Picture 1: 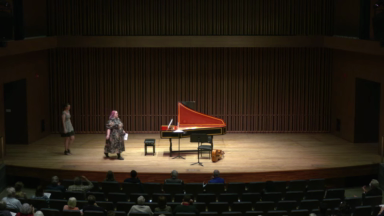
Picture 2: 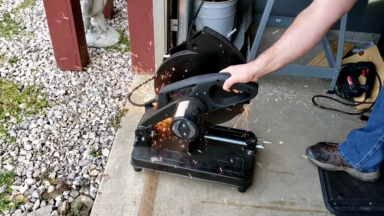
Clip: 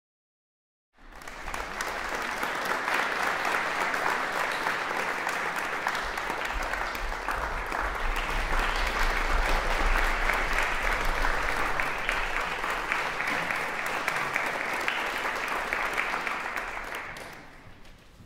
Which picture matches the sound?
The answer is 1